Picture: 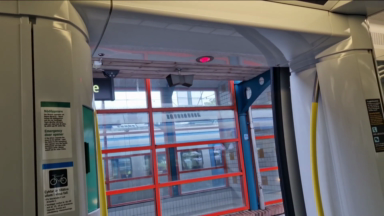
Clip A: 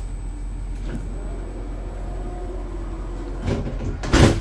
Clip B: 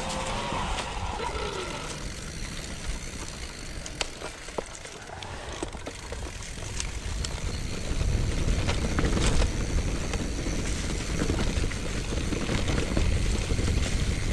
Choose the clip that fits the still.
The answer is A